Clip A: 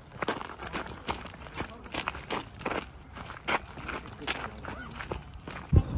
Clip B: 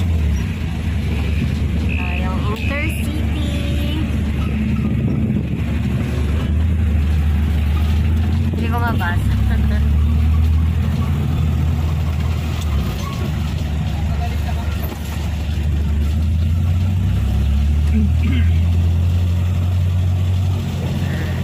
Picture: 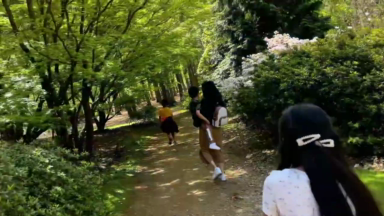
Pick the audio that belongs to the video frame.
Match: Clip A